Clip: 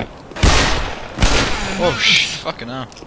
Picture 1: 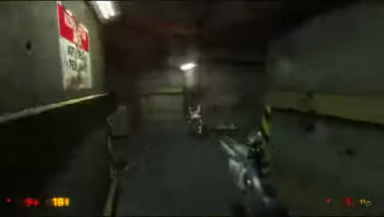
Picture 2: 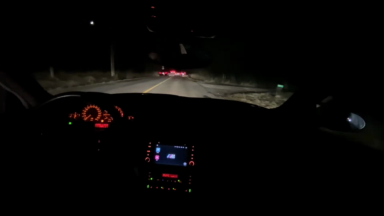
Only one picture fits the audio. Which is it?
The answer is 1